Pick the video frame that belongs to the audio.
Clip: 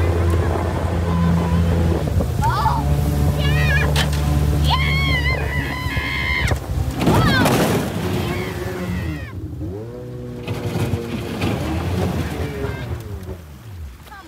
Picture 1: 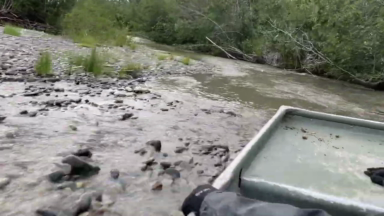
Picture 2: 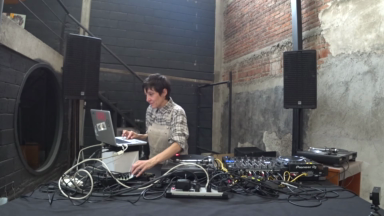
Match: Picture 1